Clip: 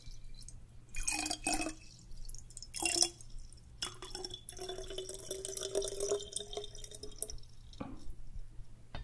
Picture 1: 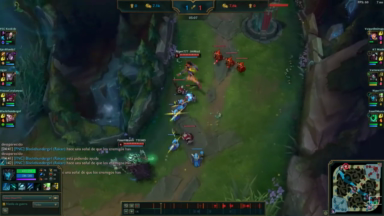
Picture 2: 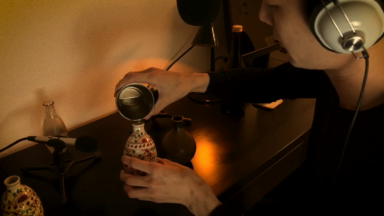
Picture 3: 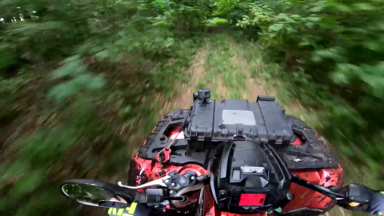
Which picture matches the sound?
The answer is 2